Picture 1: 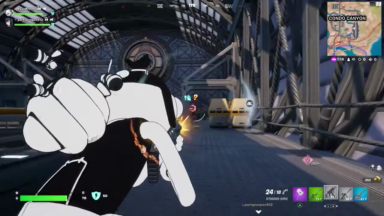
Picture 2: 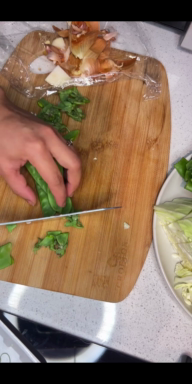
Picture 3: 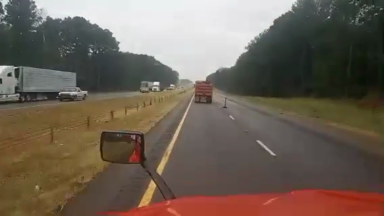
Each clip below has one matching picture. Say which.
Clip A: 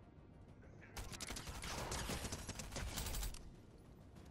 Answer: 1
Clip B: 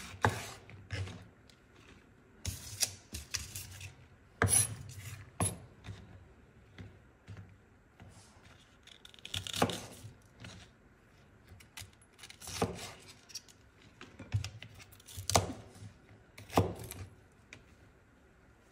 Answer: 2